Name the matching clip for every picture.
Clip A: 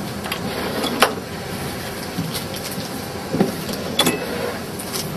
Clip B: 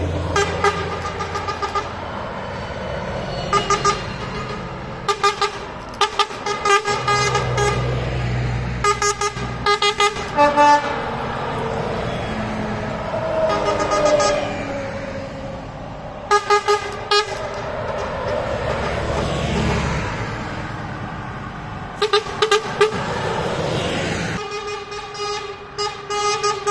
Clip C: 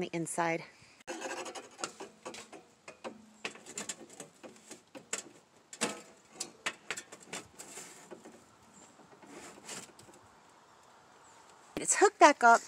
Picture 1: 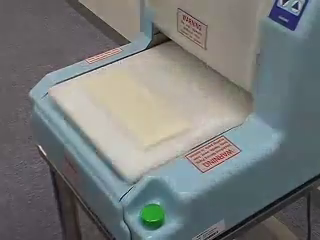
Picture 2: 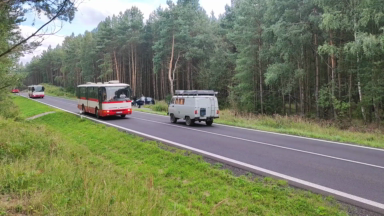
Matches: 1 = A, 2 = B